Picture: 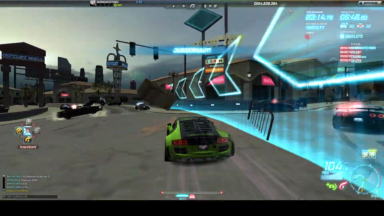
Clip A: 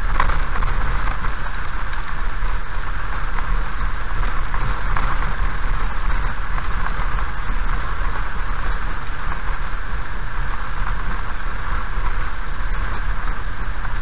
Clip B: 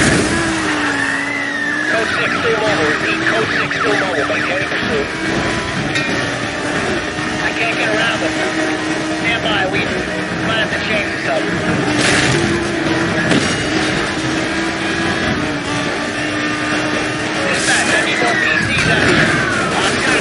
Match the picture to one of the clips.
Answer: B